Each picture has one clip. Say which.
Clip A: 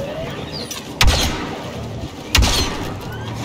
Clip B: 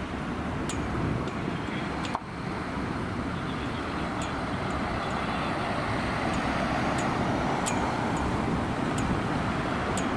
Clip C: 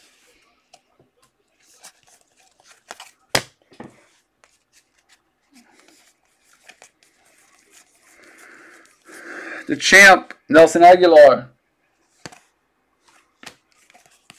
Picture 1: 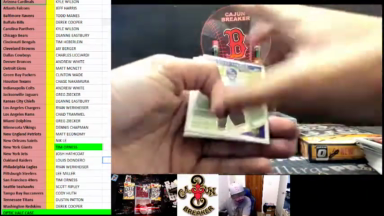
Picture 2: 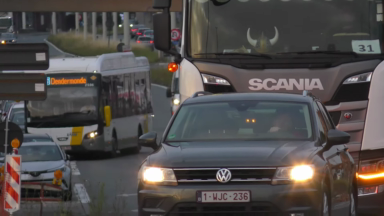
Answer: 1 C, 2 B